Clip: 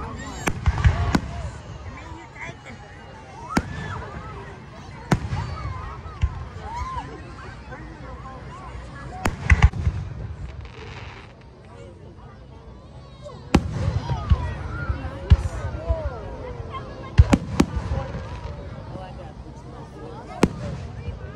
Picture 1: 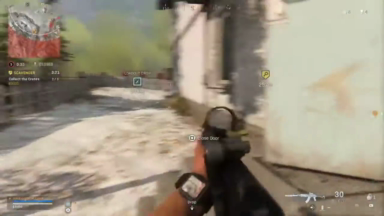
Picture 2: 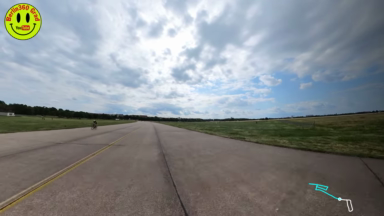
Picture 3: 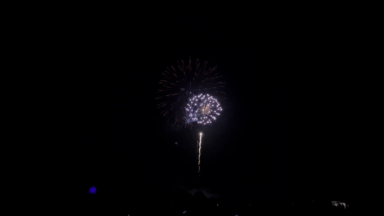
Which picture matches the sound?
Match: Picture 3